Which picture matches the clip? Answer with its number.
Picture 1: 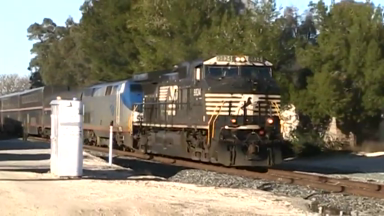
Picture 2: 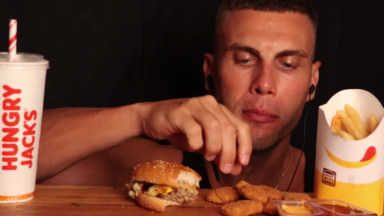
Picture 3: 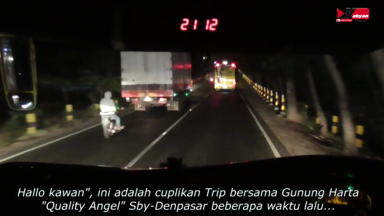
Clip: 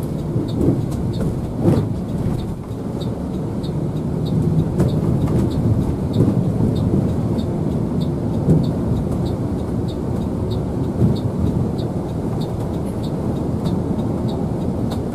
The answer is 3